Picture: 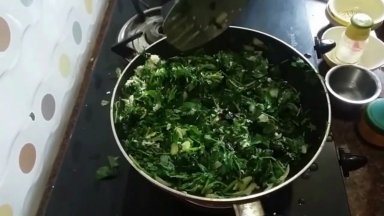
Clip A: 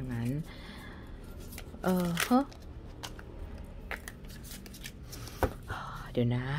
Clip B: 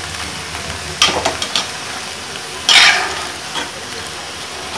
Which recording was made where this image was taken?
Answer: B